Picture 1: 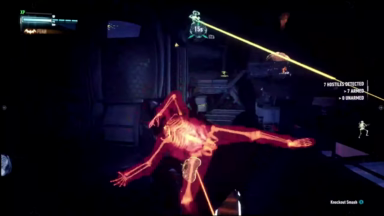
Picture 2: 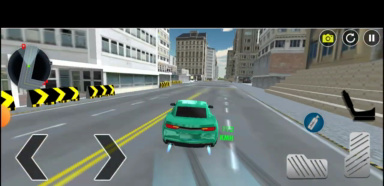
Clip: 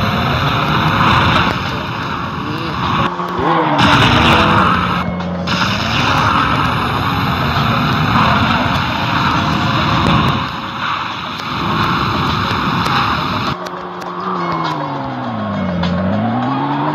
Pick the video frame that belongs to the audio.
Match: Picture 2